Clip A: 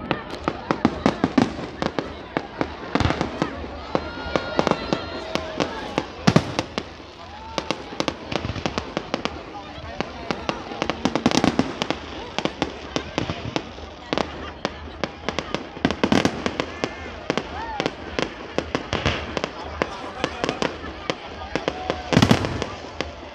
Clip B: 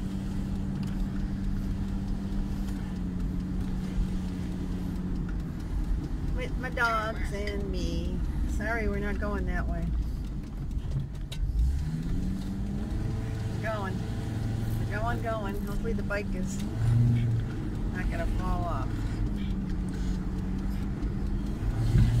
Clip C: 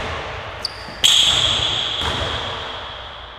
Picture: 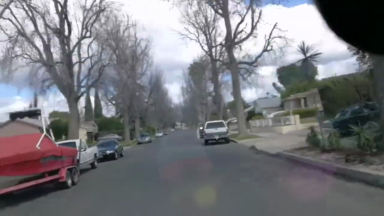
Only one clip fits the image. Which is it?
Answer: B